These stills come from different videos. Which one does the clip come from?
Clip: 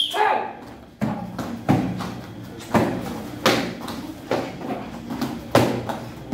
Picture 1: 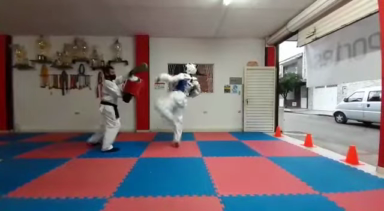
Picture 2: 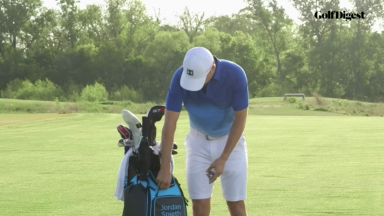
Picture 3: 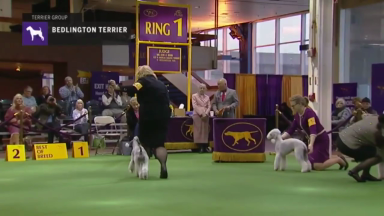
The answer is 1